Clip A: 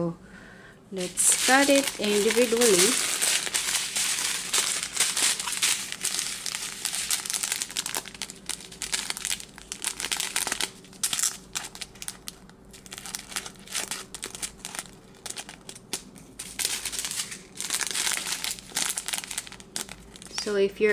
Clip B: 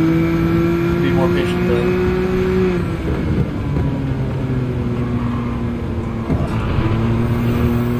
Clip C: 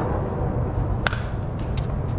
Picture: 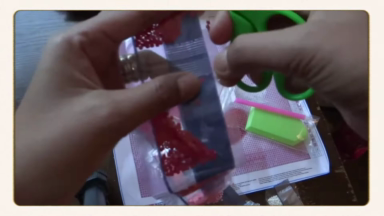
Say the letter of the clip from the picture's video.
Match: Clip A